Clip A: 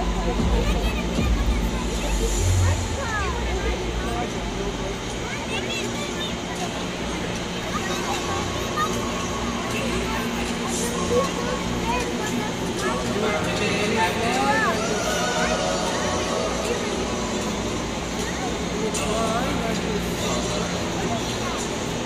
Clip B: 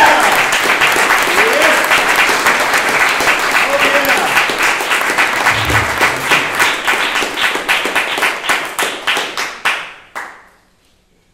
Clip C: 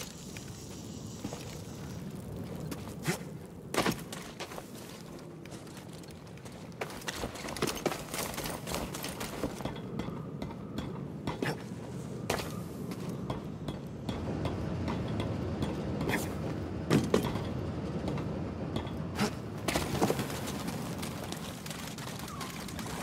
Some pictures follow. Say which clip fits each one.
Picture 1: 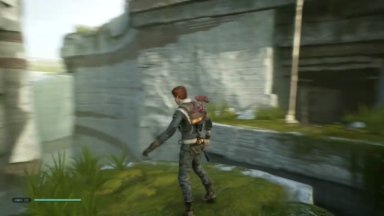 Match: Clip C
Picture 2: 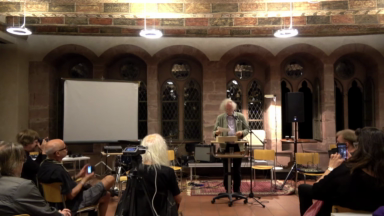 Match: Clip B